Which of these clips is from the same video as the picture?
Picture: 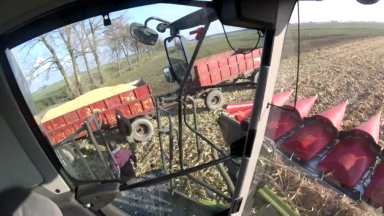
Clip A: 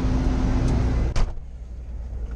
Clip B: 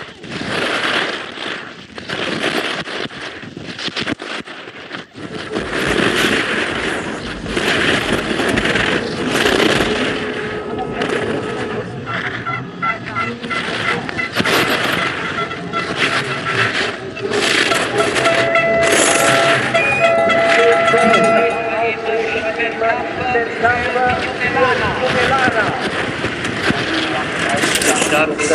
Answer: A